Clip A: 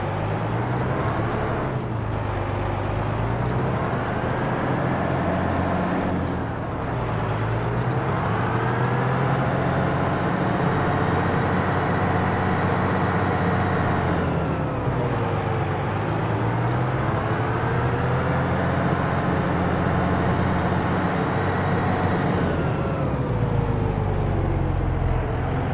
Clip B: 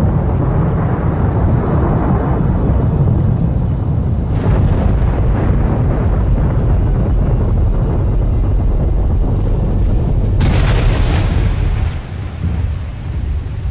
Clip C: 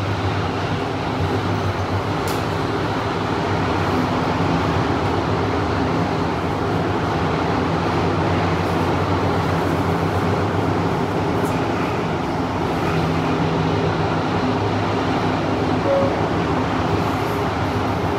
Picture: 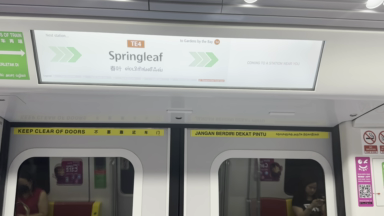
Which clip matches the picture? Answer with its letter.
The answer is C